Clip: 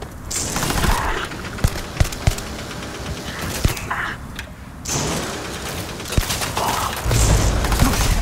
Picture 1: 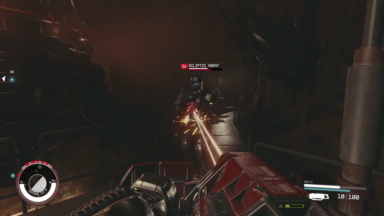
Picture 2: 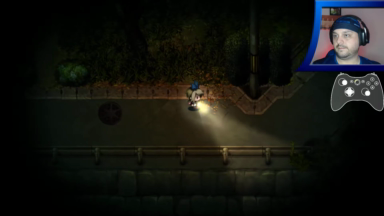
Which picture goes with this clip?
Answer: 1